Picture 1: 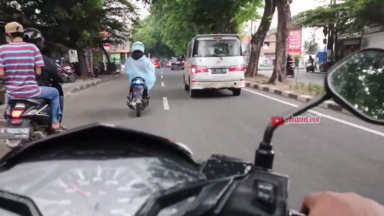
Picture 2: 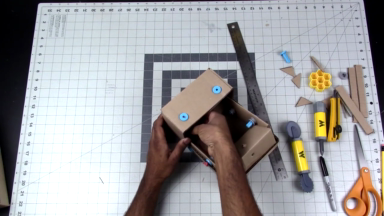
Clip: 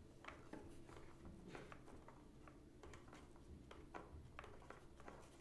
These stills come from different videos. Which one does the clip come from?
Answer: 2